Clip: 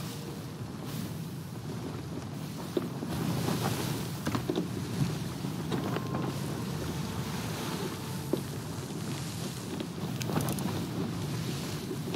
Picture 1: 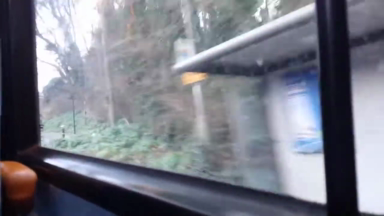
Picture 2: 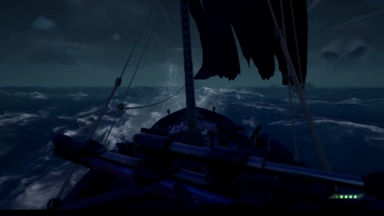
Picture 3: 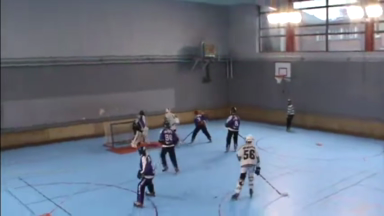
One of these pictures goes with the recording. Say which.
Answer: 2